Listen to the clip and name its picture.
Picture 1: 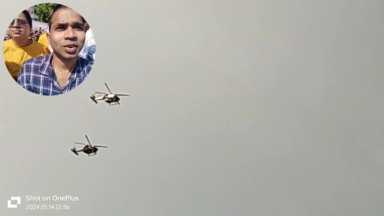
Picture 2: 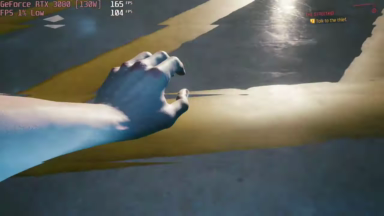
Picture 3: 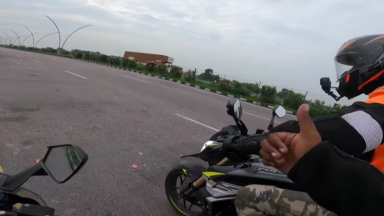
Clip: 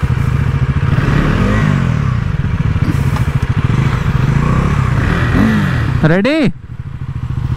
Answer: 3